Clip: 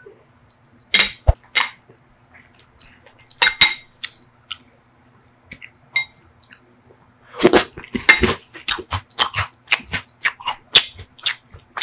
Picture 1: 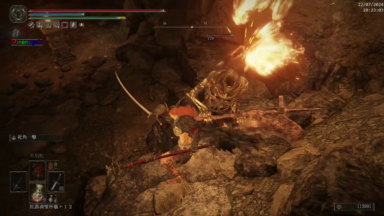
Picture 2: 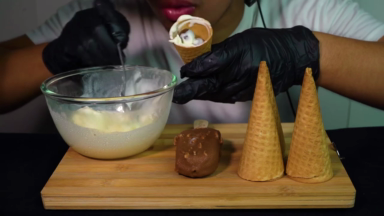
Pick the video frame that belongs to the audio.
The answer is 2